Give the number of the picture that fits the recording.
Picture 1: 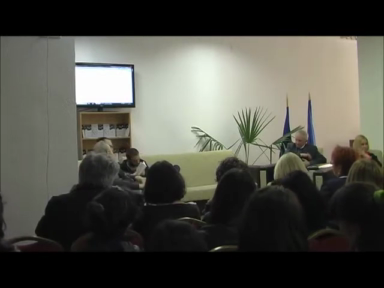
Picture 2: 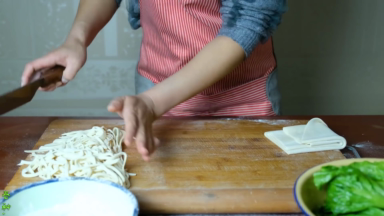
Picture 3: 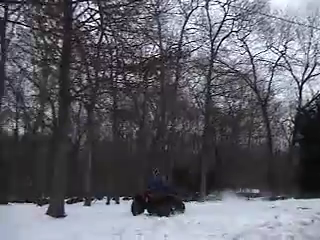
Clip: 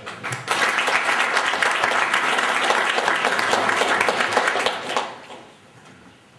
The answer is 1